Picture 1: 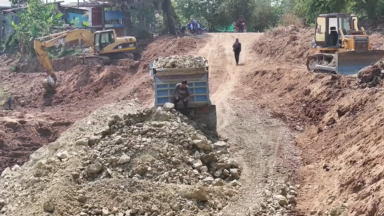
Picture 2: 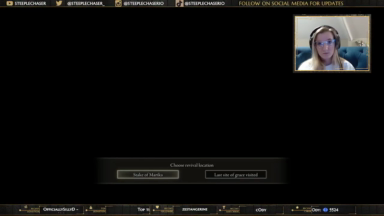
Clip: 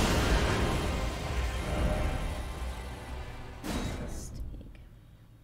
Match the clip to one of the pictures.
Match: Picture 2